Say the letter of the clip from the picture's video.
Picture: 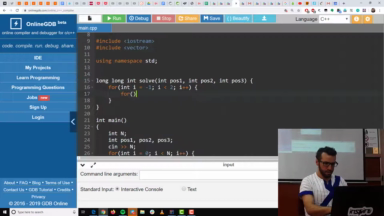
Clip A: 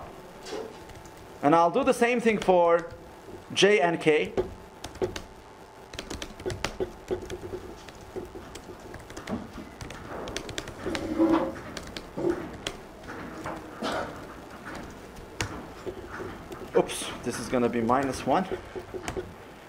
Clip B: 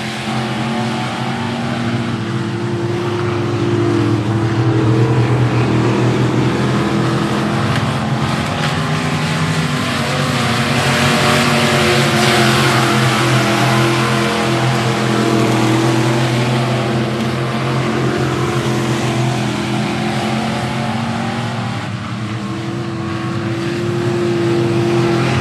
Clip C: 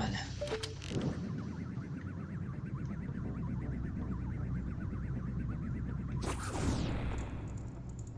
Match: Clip A